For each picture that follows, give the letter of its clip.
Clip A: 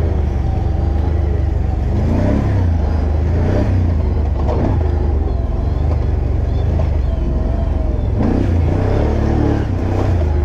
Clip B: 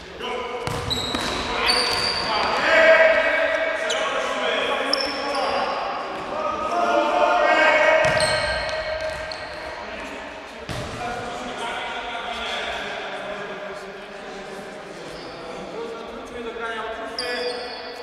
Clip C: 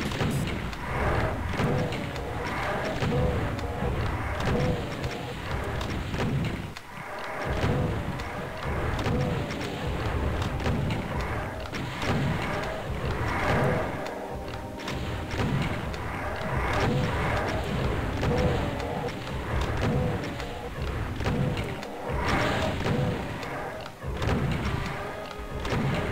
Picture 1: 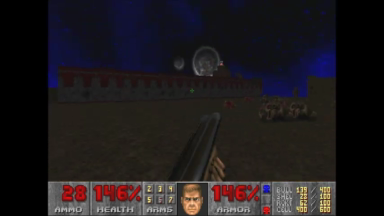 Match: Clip C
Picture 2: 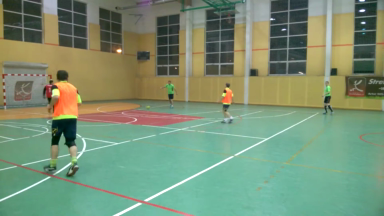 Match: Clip B